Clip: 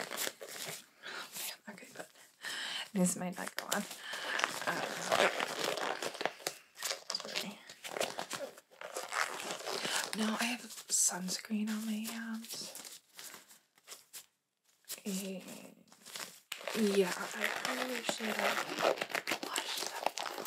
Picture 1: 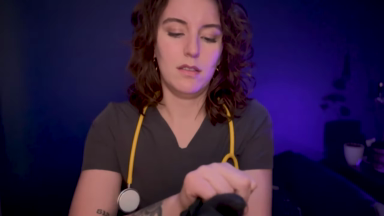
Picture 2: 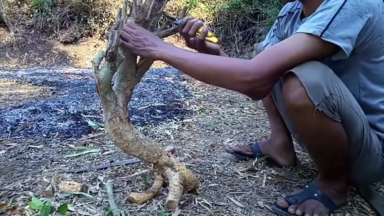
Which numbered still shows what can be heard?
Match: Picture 1